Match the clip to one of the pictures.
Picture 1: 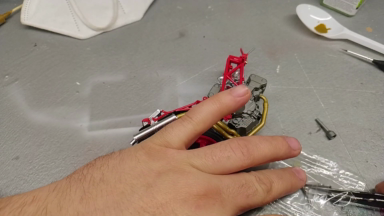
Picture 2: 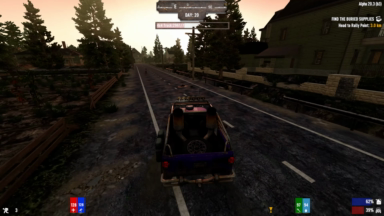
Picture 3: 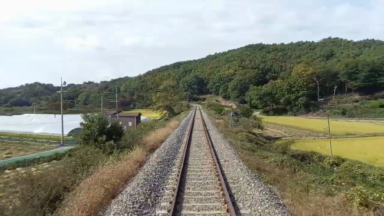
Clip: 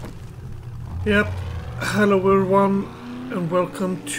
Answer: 2